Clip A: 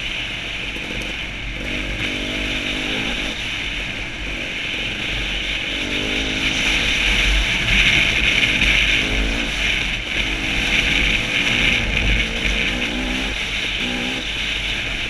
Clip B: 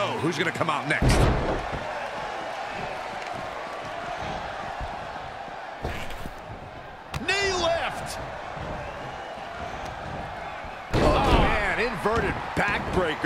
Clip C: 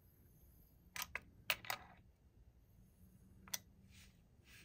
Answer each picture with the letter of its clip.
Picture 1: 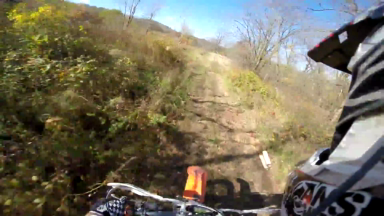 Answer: A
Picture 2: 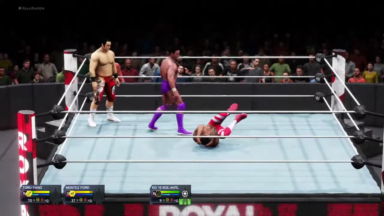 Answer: B